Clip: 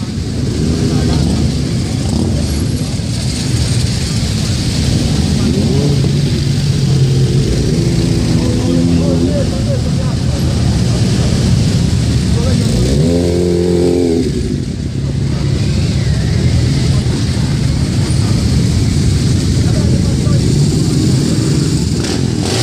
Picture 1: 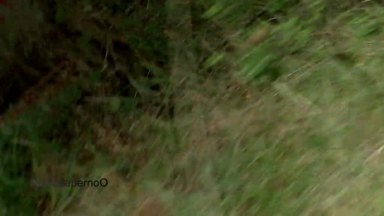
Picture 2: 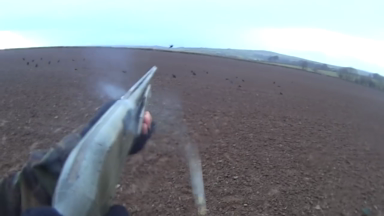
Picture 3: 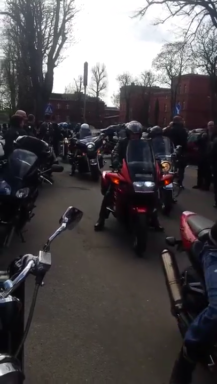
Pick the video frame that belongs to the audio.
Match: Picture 3